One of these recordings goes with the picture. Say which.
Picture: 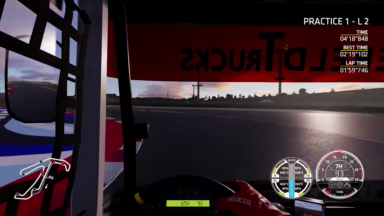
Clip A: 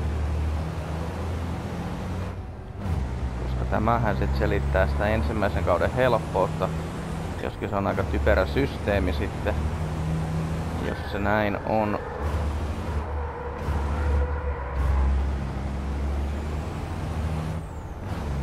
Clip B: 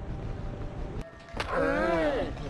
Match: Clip A